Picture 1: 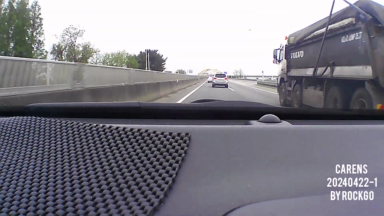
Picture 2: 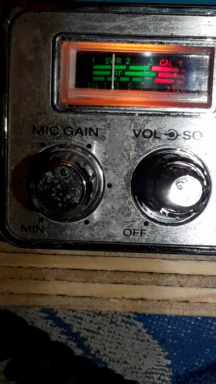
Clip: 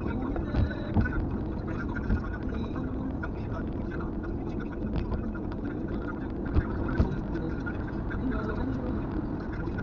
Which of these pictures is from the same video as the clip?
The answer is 1